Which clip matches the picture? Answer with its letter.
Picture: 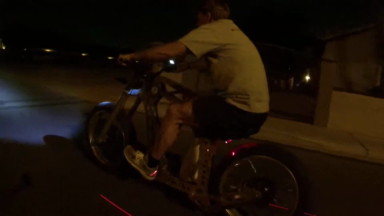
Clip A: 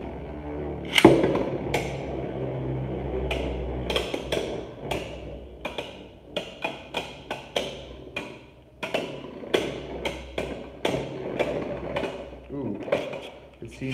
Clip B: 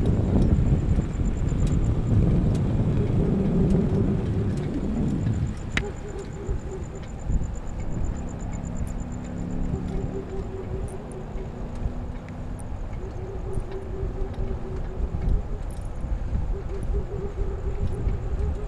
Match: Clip B